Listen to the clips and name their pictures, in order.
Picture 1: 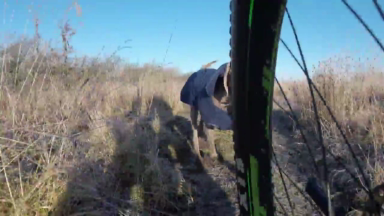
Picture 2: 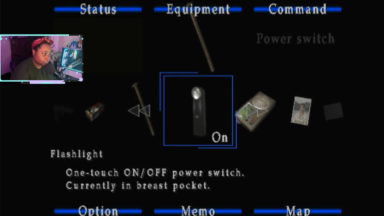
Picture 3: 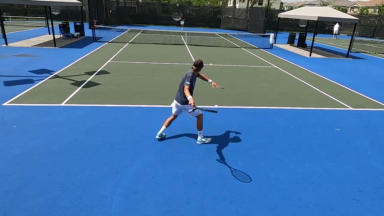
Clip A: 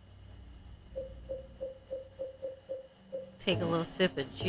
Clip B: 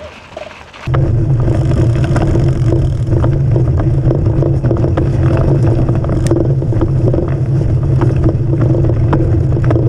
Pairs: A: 2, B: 1